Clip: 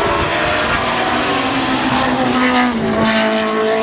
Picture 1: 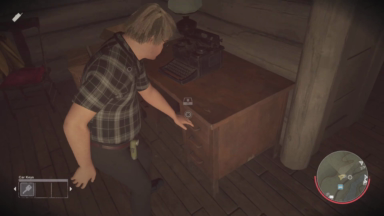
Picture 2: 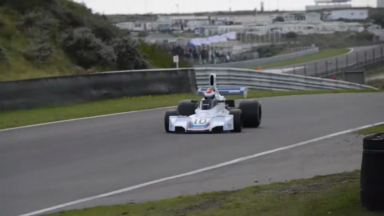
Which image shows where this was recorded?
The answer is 2